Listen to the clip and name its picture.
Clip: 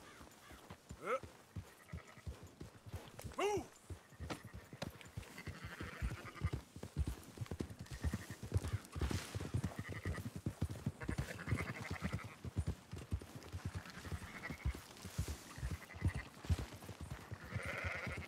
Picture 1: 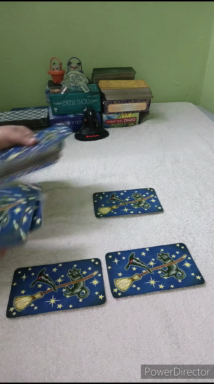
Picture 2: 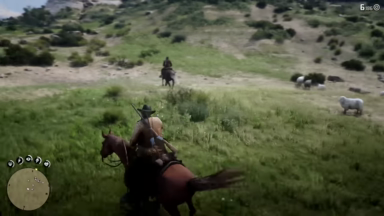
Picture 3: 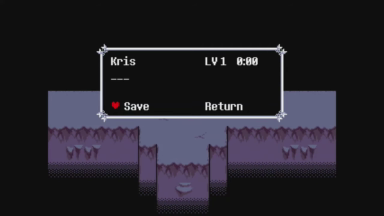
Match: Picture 2